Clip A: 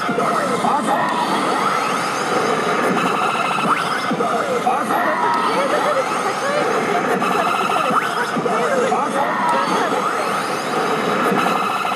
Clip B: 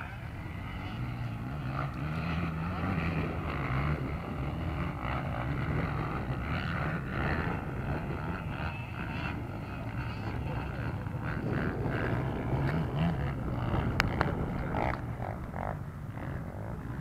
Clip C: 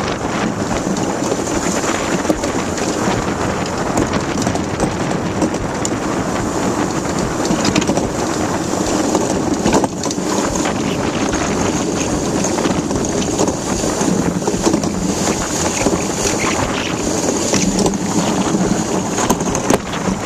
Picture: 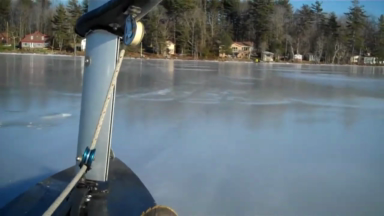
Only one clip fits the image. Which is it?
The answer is C